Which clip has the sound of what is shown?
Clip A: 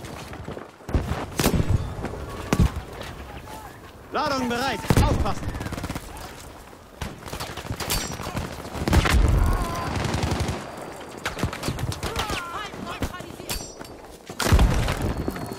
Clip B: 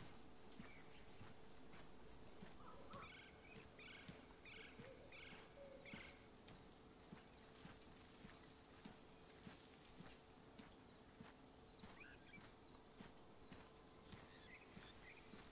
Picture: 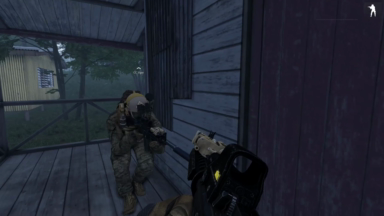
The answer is B